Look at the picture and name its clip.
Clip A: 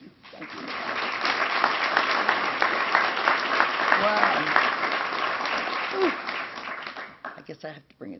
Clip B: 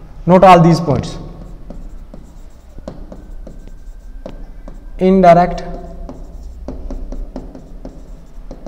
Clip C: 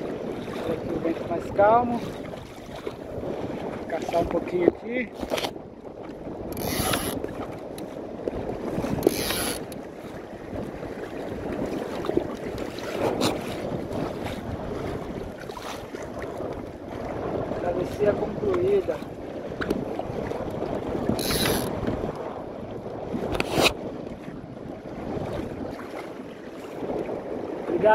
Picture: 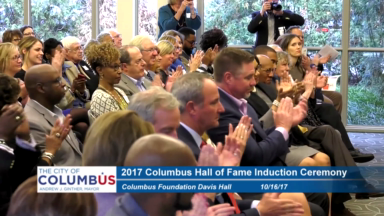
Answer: A